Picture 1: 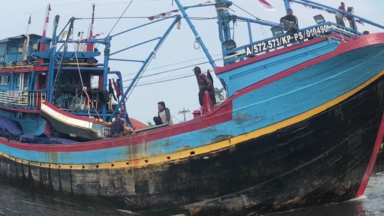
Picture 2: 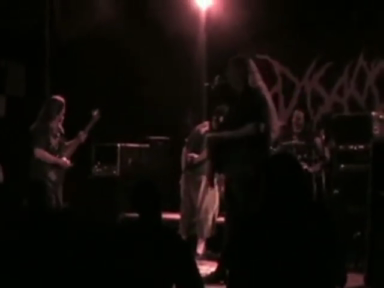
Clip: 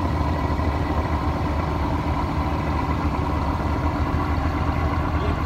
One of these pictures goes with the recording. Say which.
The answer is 1